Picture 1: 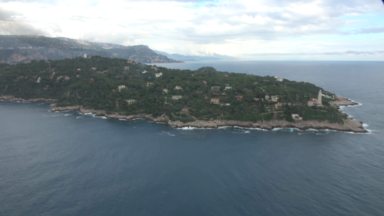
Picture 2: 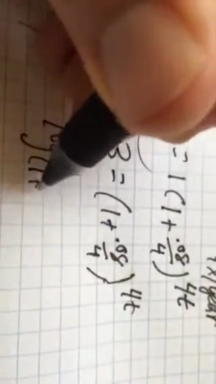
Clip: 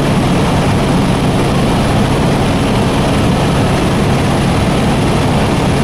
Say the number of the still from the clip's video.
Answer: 1